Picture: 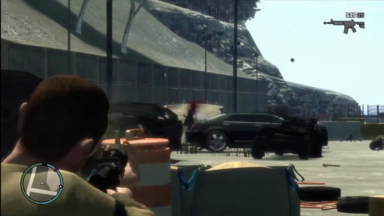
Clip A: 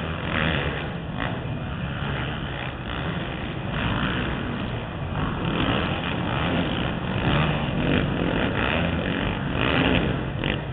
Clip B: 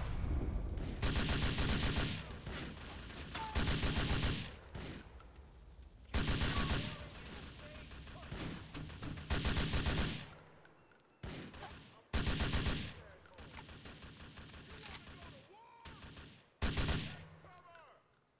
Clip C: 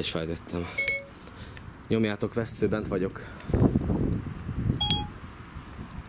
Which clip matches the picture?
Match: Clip B